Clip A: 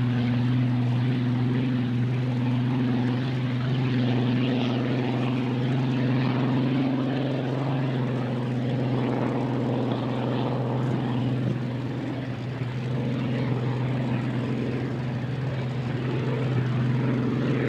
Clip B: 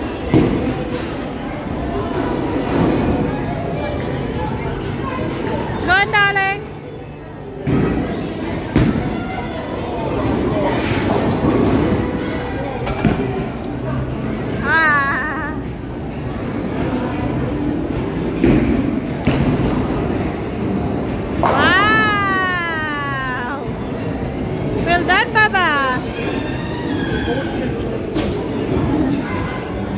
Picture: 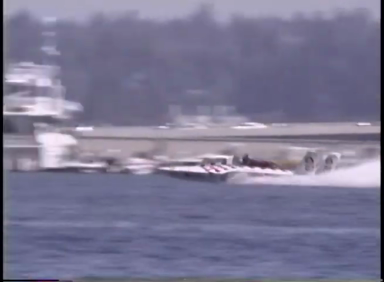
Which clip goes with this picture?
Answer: A